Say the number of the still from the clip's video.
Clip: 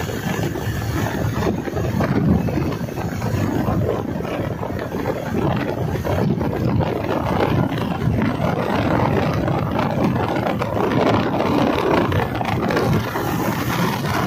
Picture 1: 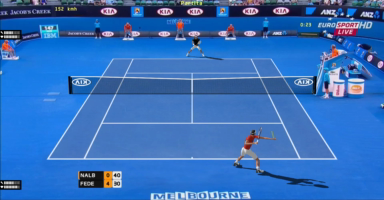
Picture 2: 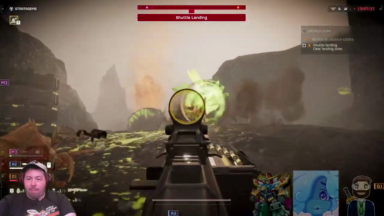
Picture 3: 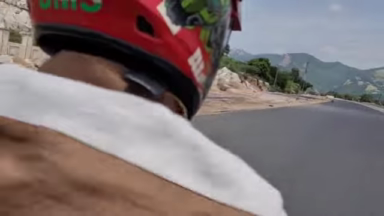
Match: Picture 3